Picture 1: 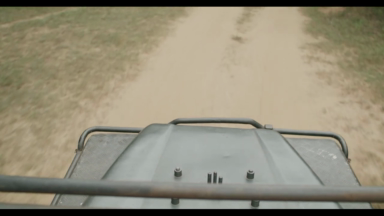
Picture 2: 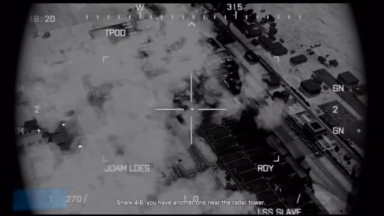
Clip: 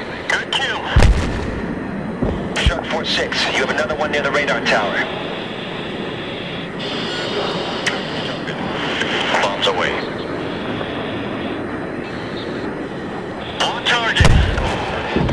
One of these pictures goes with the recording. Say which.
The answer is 2